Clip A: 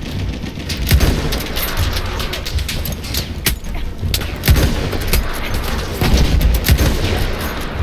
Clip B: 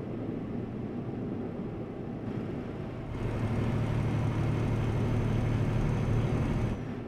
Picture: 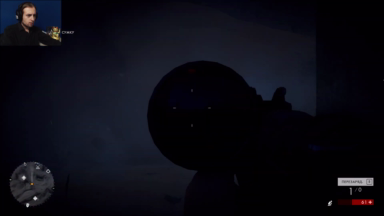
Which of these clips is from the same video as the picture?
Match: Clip A